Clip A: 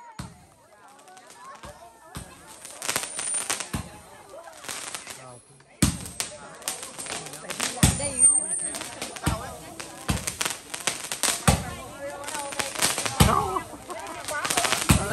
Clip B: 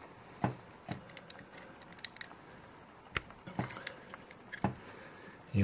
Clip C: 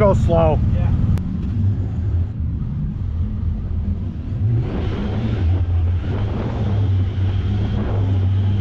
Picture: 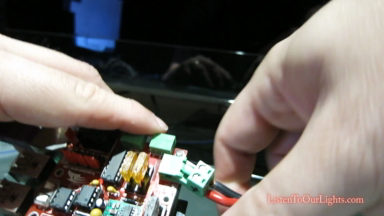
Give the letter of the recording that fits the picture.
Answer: B